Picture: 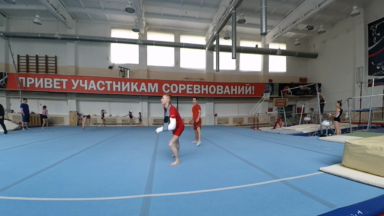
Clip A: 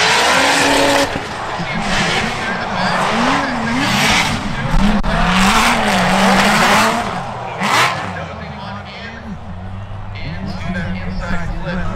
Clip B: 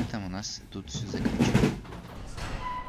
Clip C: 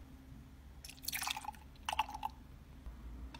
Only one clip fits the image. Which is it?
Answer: B